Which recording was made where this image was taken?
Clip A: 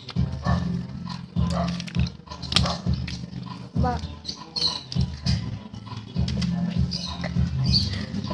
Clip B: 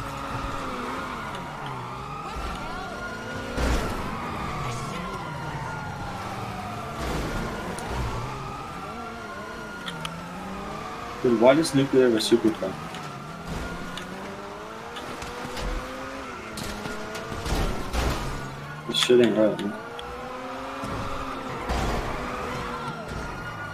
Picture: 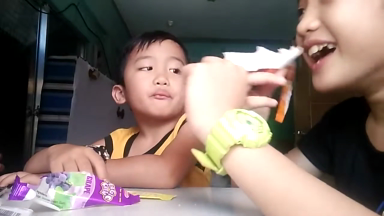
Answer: A